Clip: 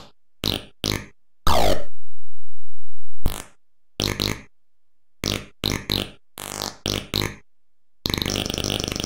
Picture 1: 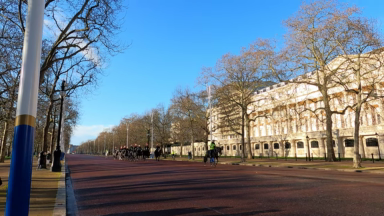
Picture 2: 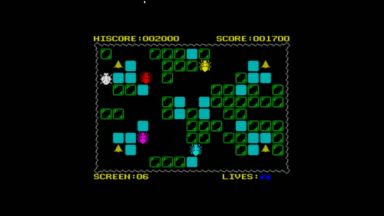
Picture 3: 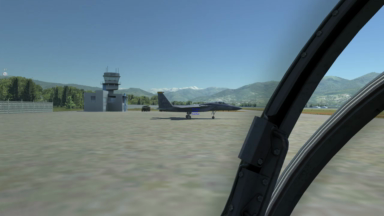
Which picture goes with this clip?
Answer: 2